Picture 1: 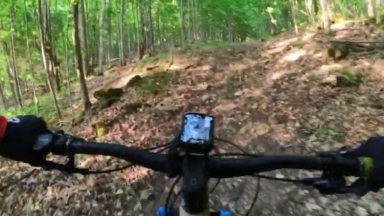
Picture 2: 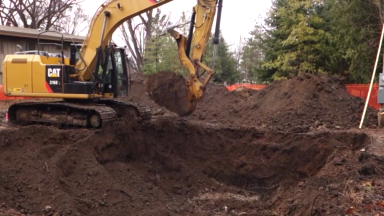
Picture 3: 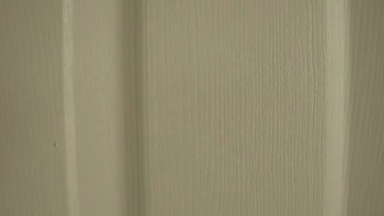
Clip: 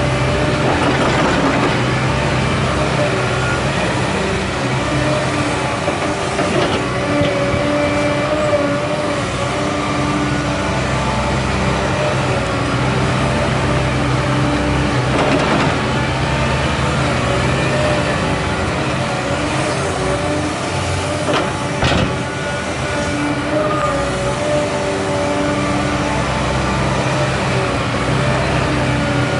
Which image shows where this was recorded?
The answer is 2